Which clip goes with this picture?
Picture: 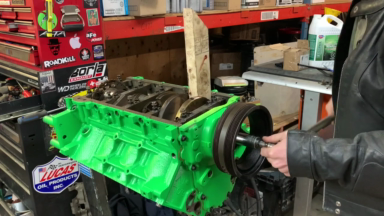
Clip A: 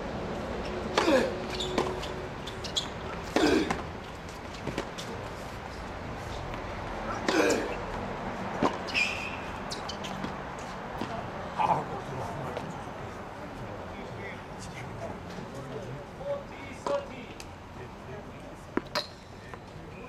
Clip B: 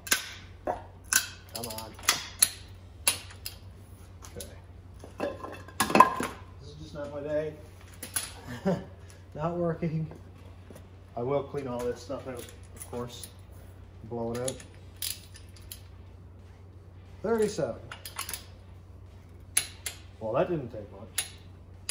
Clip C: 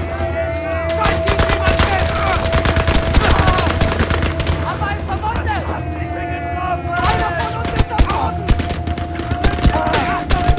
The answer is B